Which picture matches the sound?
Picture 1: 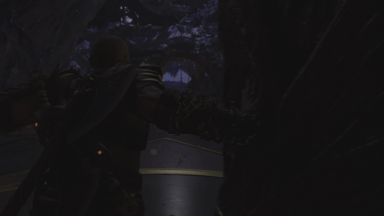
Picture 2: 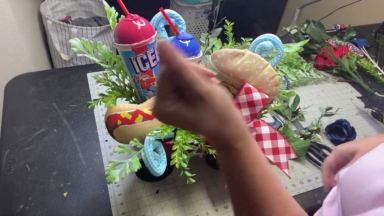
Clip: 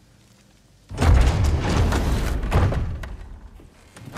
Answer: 1